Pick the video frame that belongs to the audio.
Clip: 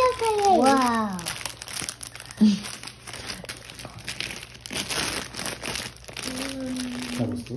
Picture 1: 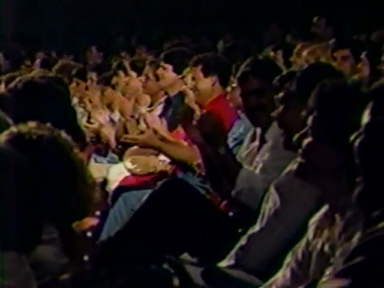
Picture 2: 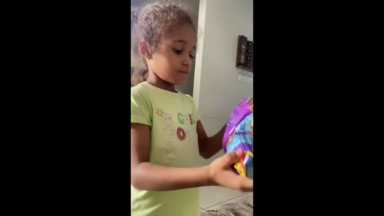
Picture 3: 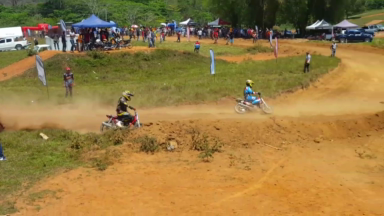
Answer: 2